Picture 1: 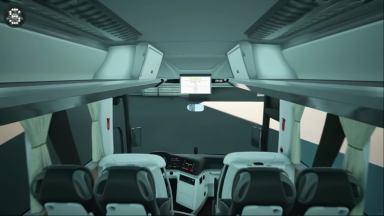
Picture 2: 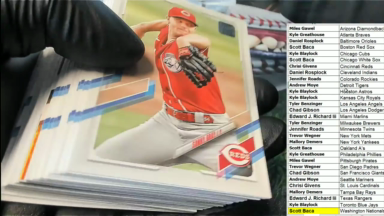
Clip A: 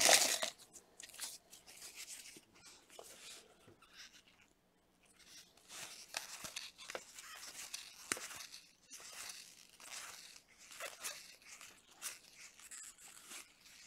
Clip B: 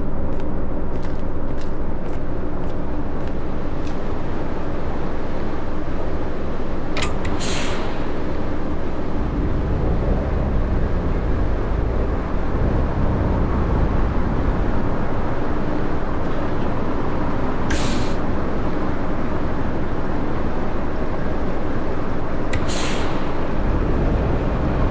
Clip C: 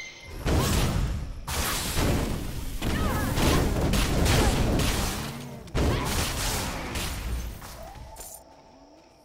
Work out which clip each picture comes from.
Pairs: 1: B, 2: A